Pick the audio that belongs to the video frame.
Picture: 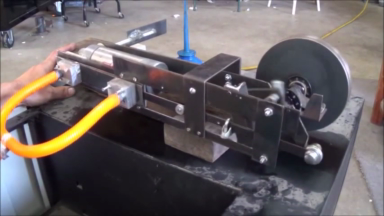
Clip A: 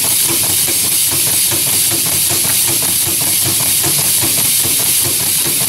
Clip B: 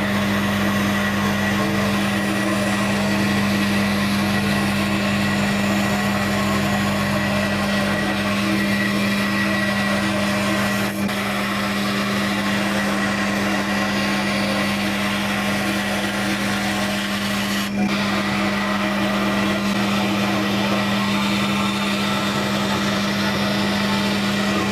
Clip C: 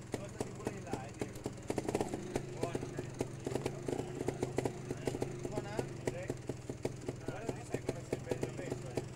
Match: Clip A